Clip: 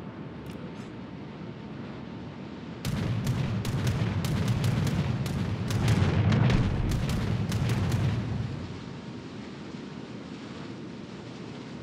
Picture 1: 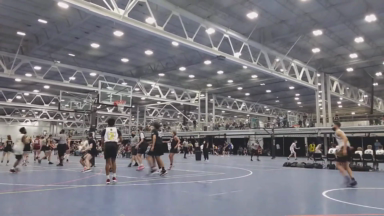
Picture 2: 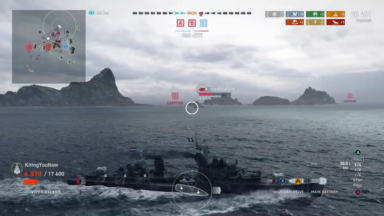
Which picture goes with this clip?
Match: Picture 2